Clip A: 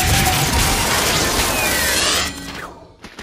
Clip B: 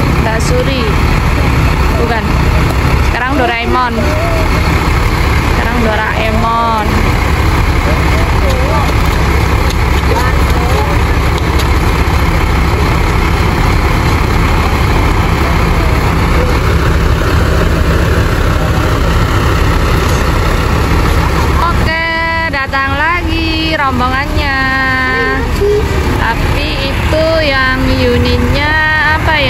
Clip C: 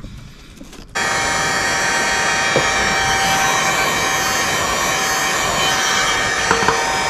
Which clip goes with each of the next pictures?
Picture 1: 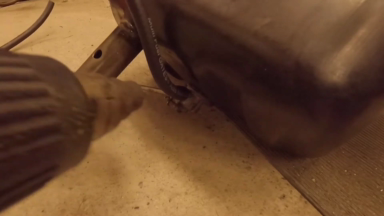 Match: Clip C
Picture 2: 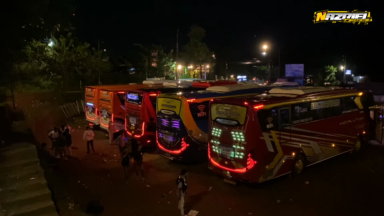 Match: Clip B